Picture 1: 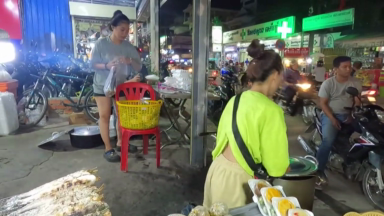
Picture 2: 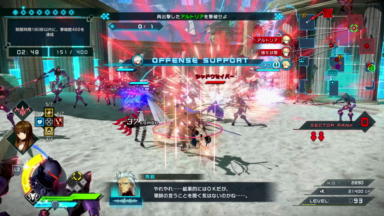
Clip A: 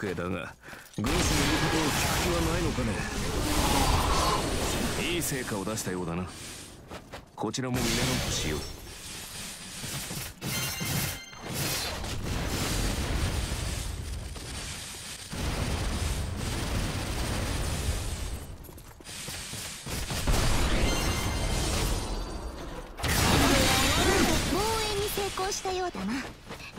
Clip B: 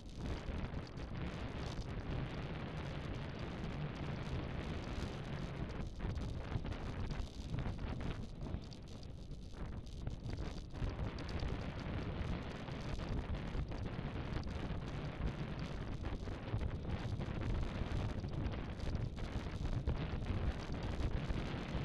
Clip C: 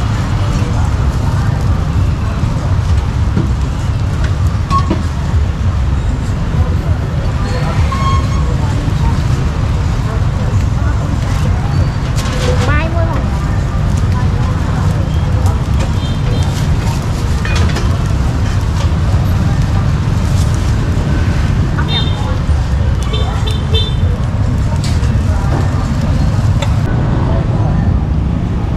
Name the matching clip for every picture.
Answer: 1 C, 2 A